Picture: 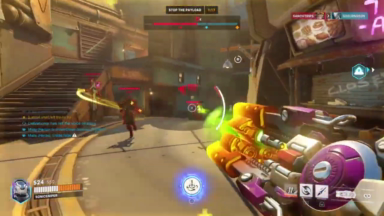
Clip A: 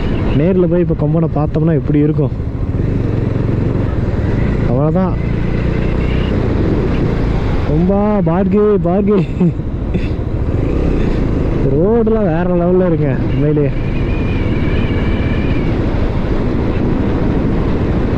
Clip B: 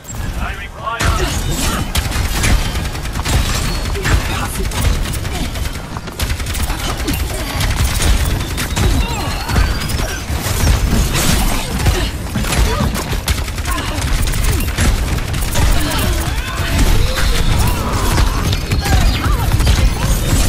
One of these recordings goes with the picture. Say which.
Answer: B